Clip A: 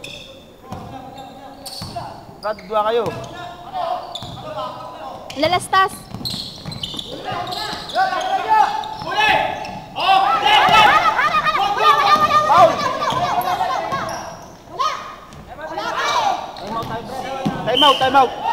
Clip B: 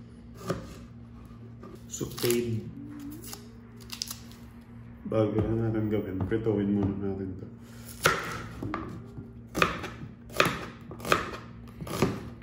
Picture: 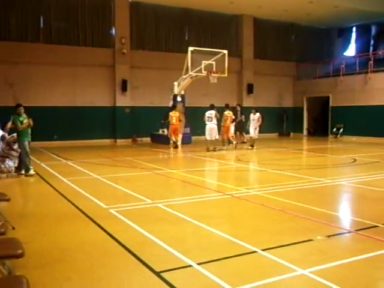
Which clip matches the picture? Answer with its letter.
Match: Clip A